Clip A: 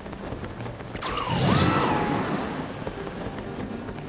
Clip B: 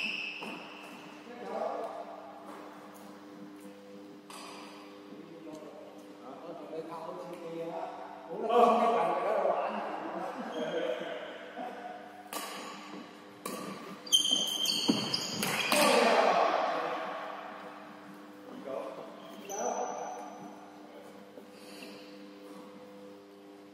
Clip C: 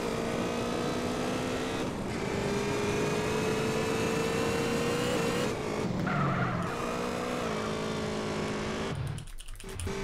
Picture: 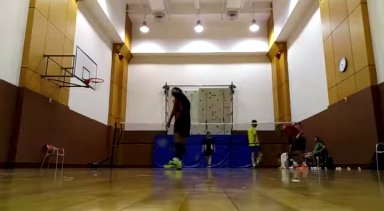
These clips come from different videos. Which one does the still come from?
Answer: B